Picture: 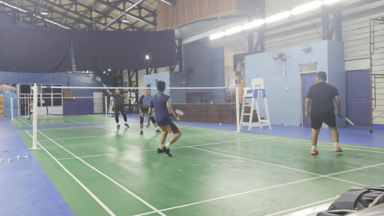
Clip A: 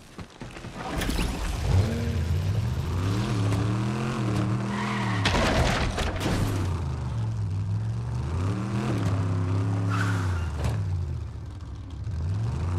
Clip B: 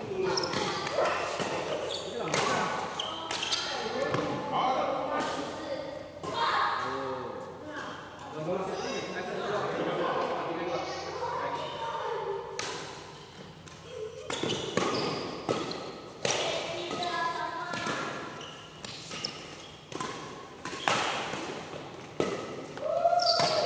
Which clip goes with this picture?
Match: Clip B